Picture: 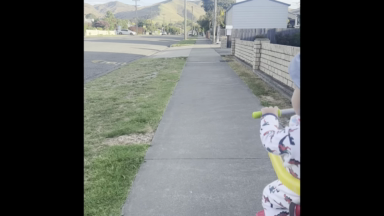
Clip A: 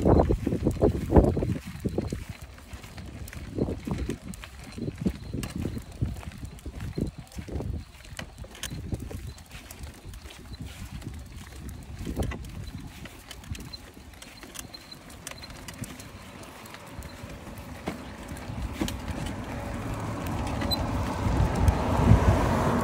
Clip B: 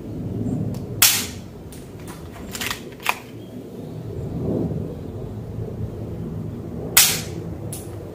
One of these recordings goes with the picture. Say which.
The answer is A